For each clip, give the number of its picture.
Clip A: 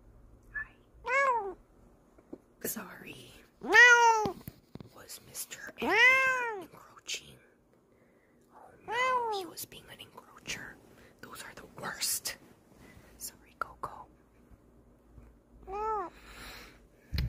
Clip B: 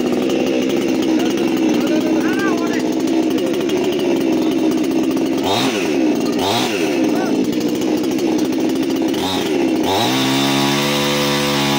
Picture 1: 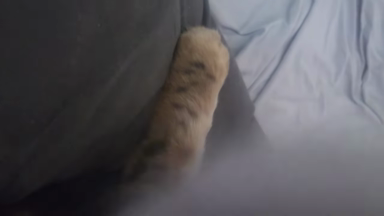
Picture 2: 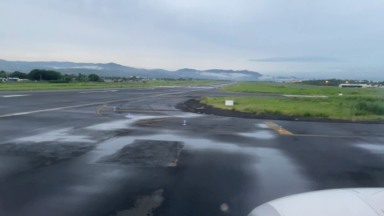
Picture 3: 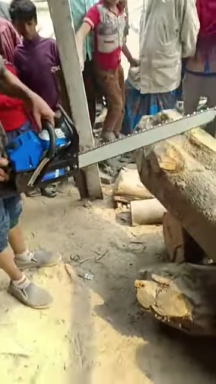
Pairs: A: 1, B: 3